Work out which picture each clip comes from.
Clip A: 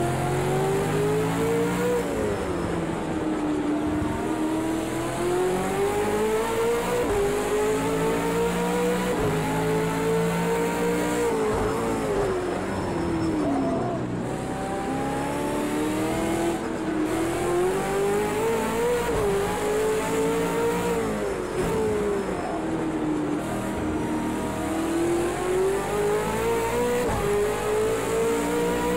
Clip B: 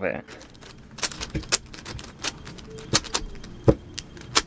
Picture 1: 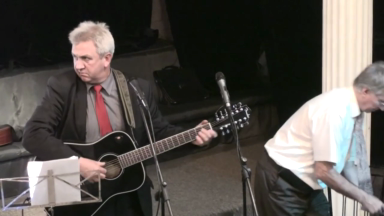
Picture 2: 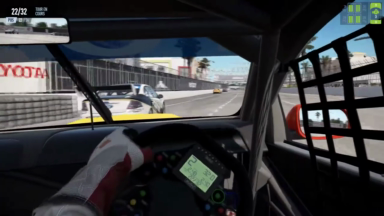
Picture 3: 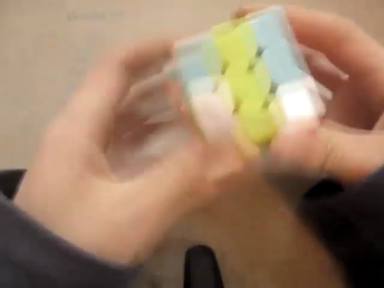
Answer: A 2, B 3